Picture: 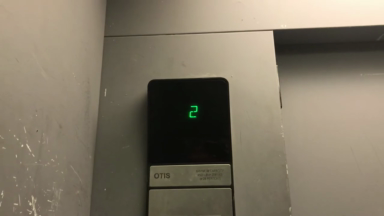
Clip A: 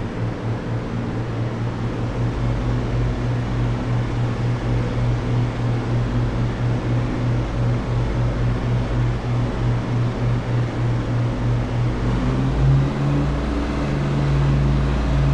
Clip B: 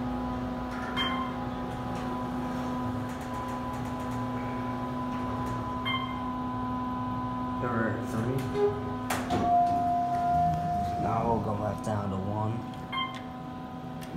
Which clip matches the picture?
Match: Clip B